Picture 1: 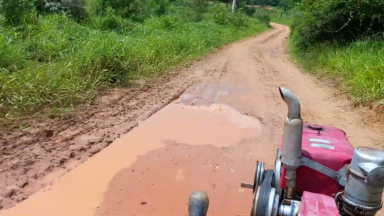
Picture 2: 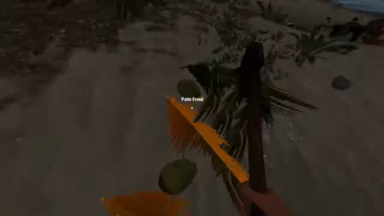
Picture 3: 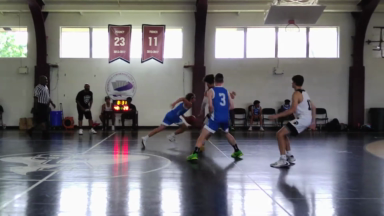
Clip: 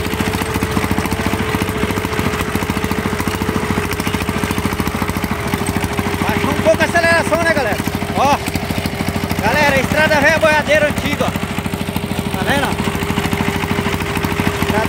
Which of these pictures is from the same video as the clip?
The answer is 1